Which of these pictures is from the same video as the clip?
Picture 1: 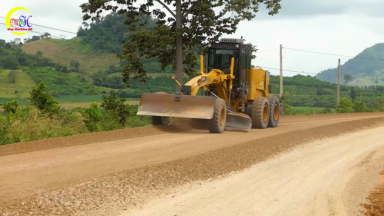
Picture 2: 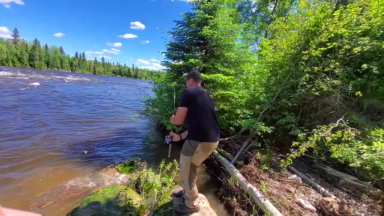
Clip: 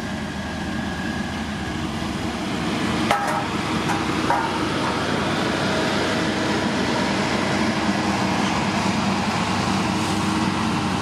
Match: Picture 1